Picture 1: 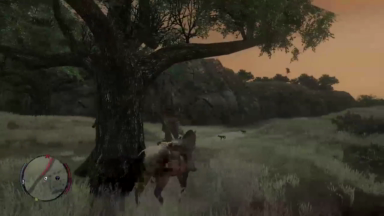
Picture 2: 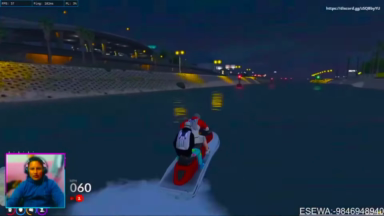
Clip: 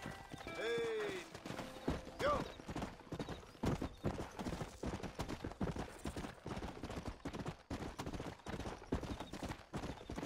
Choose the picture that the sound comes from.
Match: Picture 1